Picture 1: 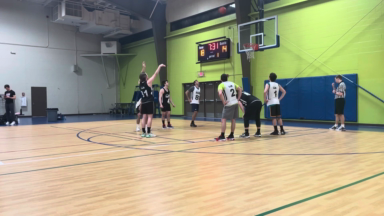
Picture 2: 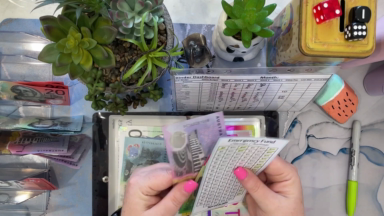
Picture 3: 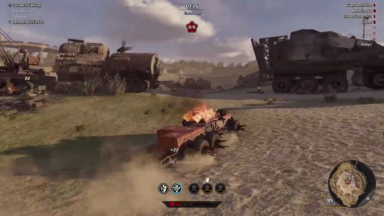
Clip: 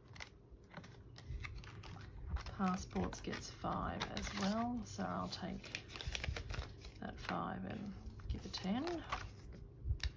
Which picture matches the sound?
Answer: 2